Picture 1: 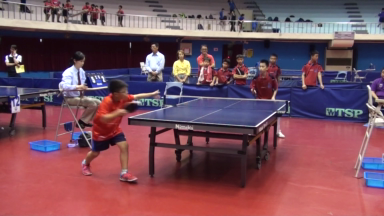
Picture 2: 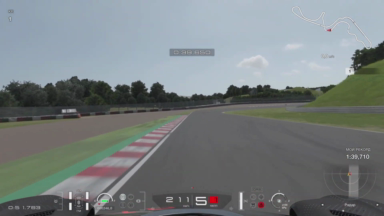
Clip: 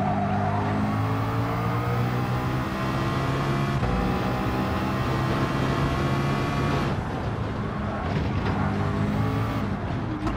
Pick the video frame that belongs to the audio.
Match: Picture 2